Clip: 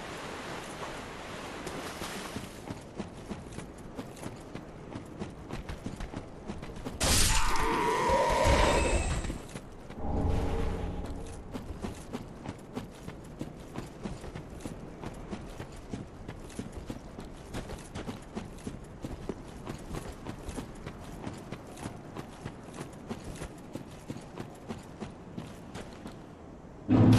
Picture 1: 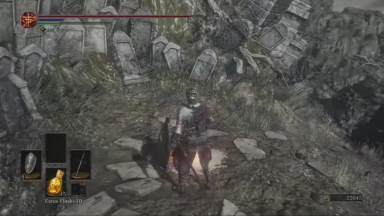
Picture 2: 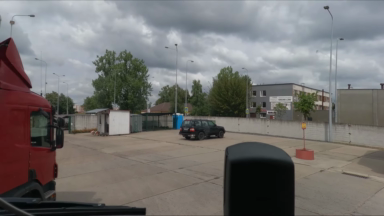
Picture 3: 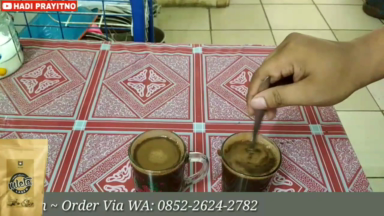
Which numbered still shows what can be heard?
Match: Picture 1